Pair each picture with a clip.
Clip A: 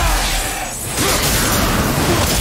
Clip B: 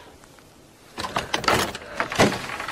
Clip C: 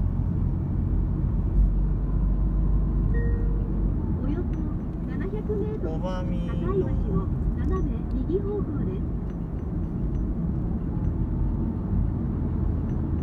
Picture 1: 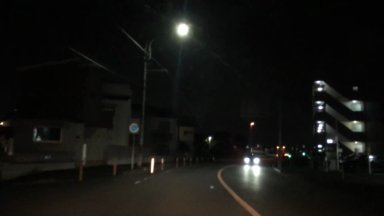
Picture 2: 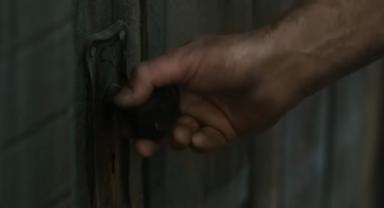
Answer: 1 C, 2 B